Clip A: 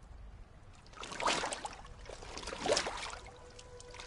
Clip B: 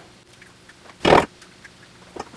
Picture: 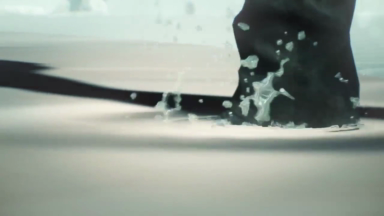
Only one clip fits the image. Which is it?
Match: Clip A